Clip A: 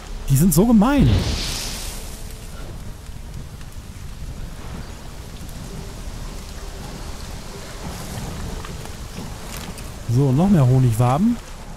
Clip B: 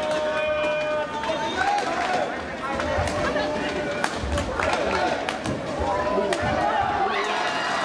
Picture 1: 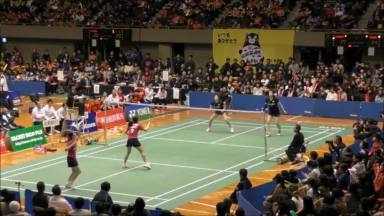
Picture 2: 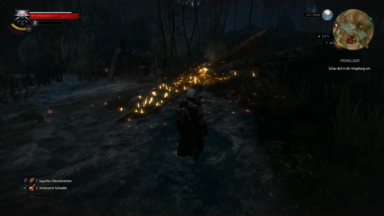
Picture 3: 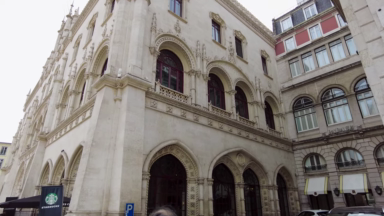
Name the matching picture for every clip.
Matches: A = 2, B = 1